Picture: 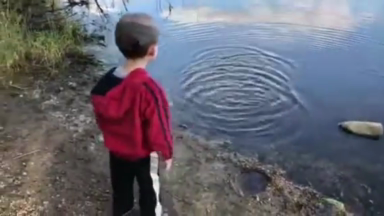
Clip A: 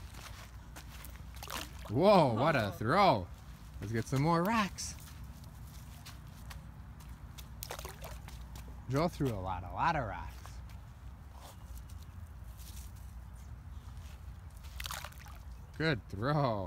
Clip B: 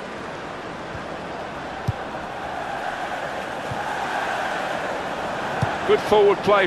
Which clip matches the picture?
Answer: A